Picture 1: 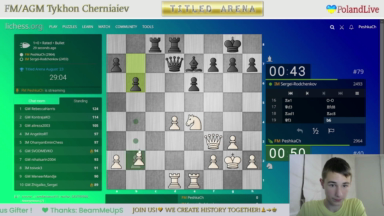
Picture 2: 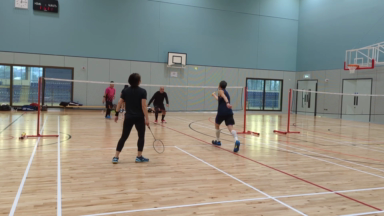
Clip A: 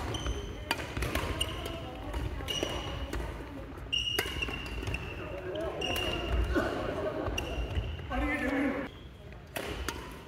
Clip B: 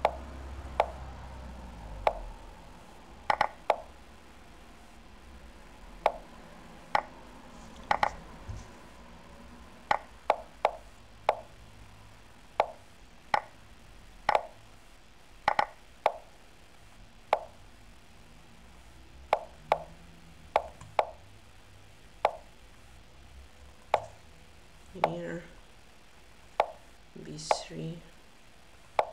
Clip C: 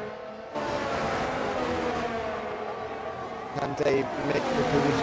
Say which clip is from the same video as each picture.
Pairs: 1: B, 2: A